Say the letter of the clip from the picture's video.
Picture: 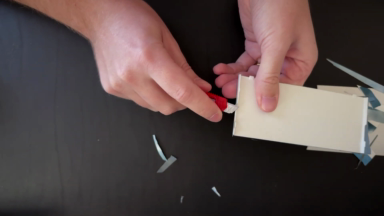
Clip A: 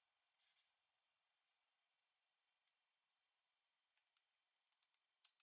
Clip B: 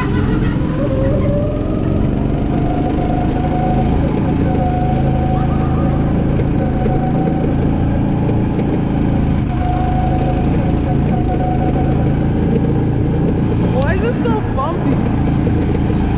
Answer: A